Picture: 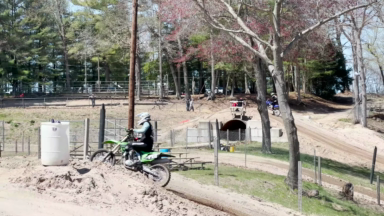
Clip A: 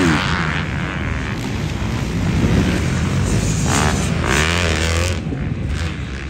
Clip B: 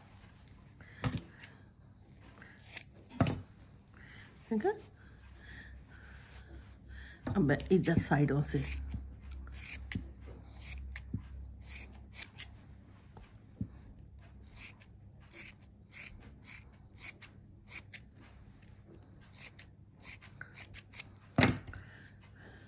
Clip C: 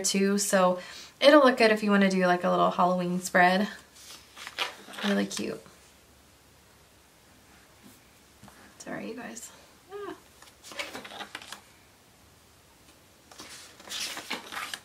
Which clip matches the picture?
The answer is A